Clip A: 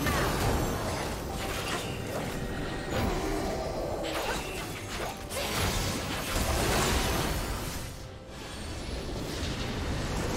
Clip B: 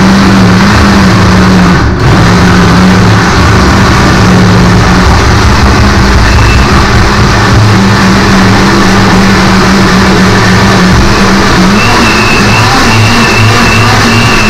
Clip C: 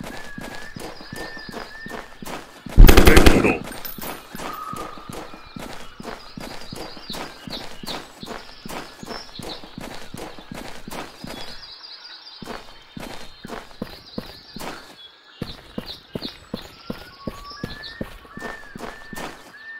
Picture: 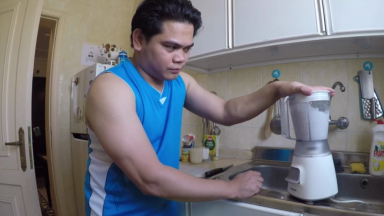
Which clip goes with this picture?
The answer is B